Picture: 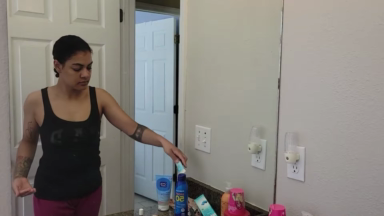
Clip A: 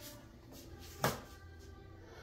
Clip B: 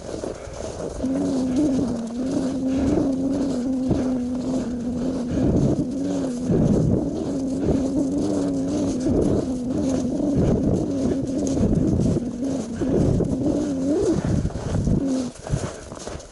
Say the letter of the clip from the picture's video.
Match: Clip A